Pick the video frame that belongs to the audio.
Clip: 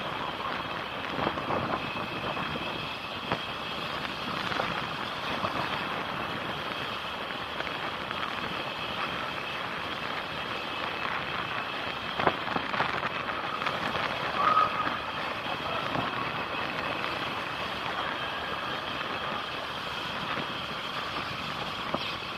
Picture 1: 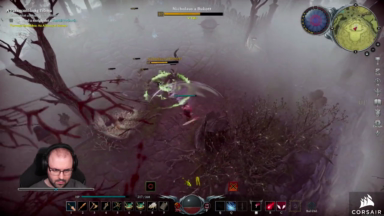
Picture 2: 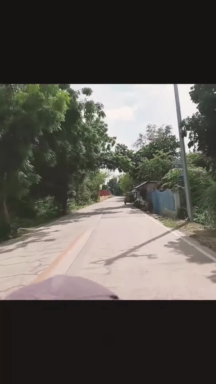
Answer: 2